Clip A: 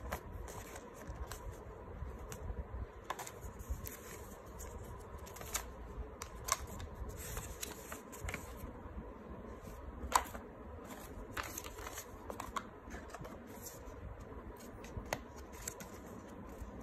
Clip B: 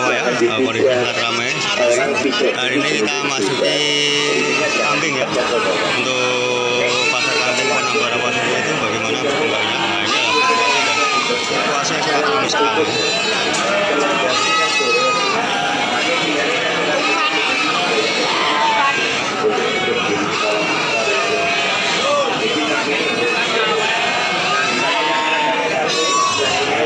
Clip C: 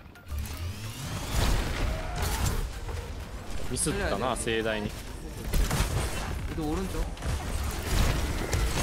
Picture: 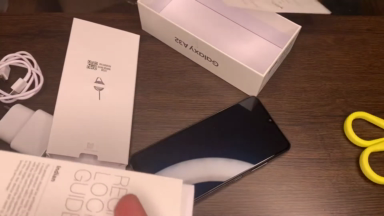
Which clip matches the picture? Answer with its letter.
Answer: A